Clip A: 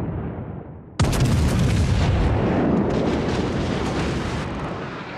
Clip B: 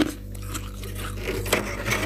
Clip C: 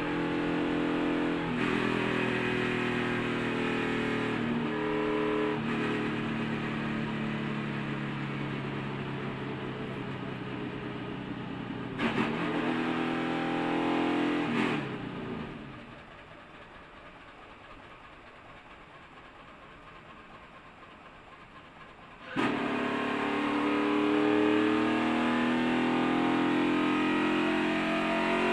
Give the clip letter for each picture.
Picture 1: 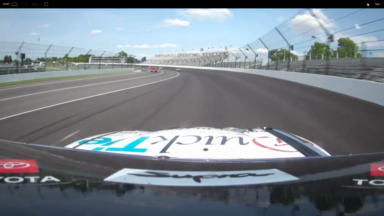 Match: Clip C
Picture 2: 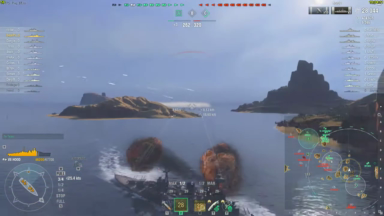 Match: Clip A